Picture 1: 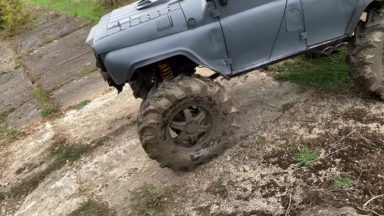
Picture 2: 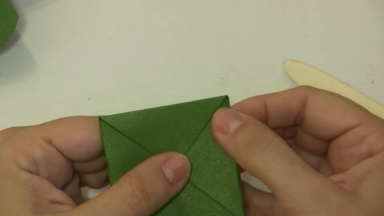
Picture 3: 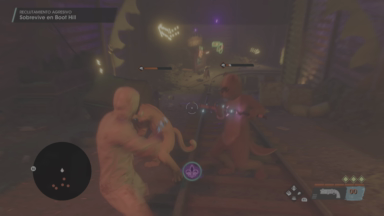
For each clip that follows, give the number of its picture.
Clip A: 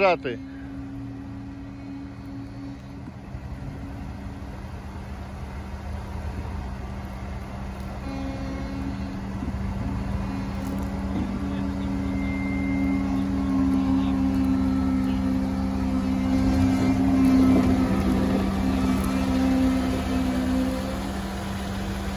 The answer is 1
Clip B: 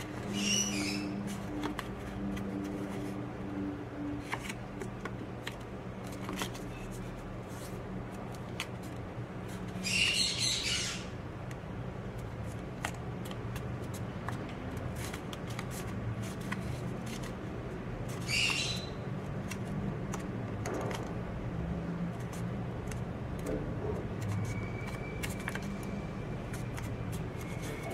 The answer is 2